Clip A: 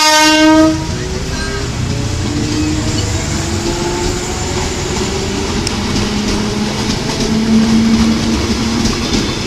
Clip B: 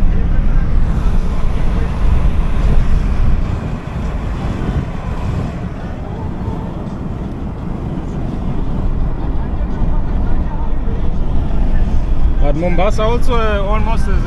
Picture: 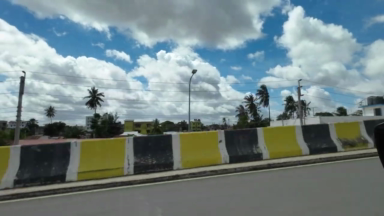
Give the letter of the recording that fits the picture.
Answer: B